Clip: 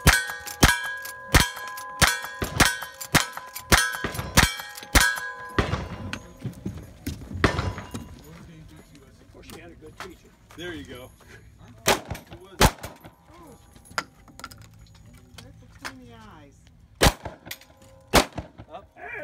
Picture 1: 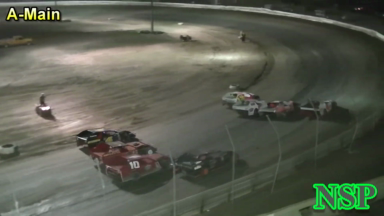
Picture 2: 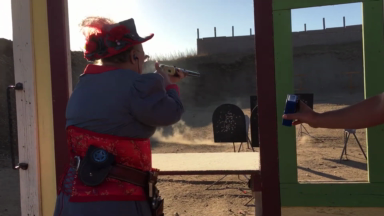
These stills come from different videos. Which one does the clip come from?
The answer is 2